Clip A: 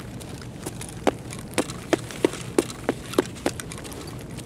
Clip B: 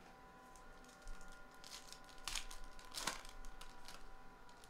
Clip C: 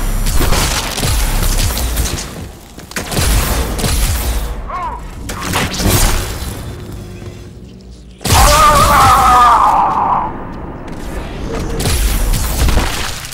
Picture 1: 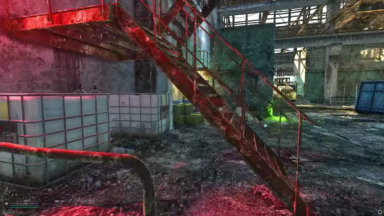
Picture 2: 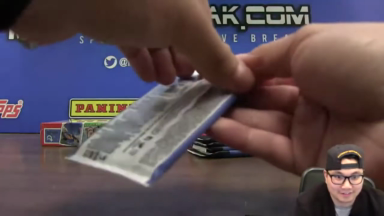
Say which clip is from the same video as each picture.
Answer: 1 A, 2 B